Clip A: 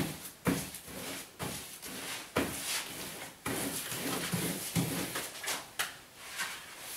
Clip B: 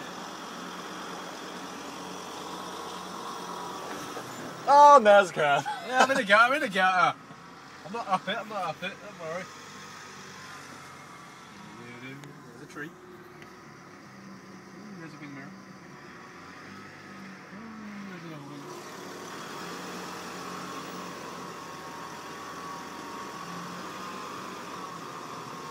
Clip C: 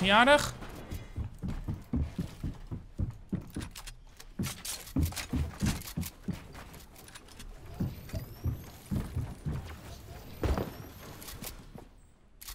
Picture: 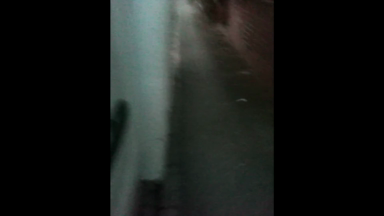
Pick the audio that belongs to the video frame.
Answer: B